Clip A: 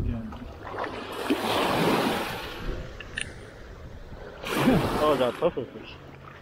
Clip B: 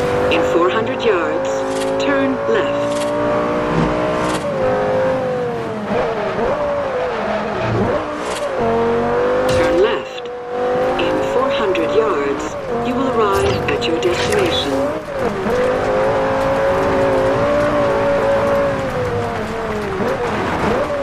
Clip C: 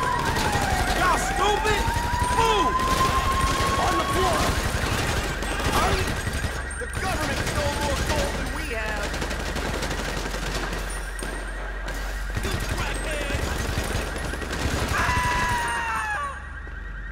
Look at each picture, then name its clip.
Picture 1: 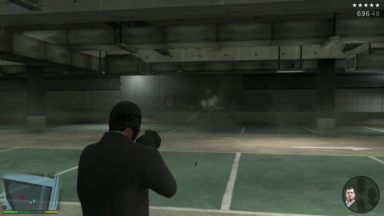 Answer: C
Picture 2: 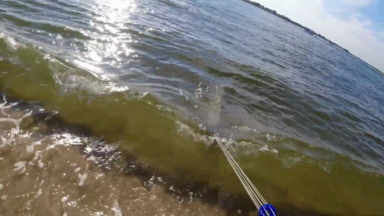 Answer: A